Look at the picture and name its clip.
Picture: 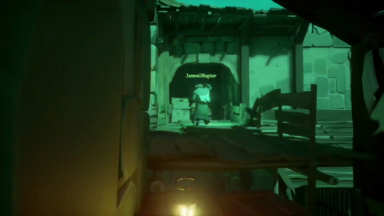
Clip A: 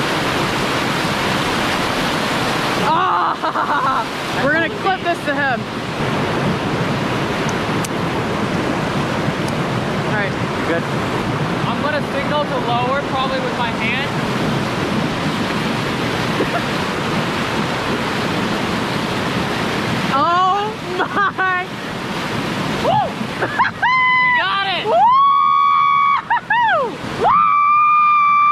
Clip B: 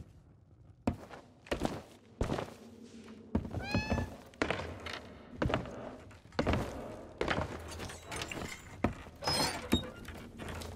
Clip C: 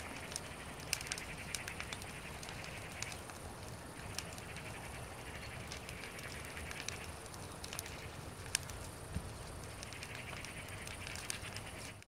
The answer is B